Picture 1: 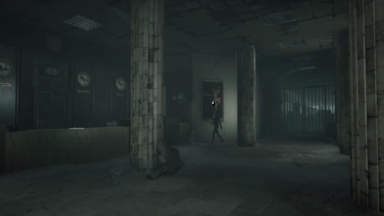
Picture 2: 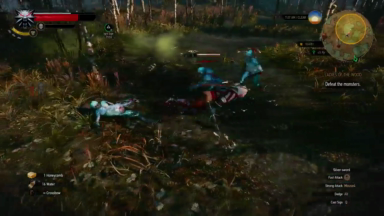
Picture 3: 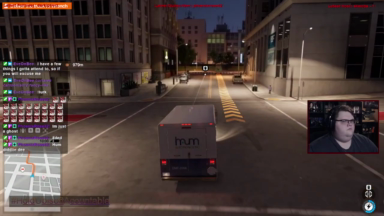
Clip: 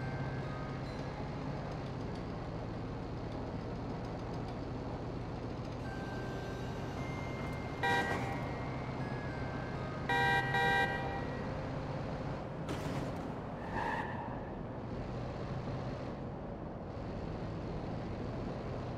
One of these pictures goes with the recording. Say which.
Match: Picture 3